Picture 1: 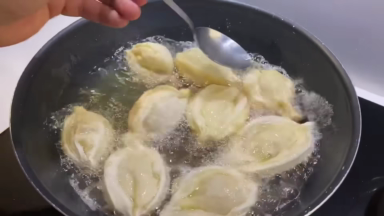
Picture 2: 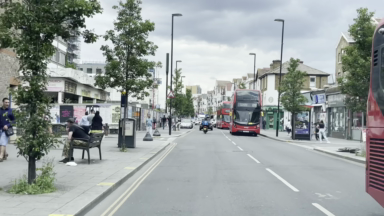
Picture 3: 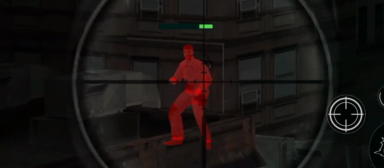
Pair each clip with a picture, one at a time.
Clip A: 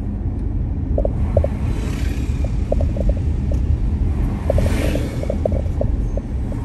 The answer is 2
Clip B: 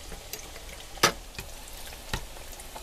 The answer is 1